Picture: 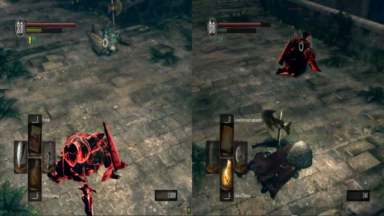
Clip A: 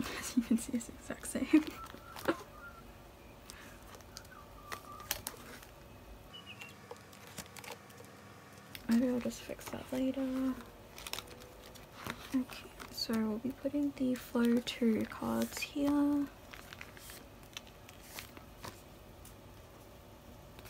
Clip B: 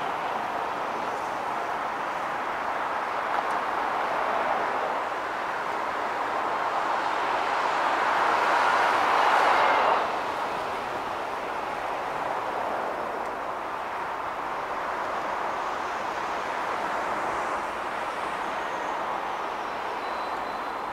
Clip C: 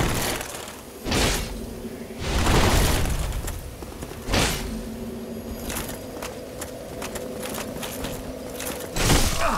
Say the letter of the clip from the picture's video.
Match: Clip C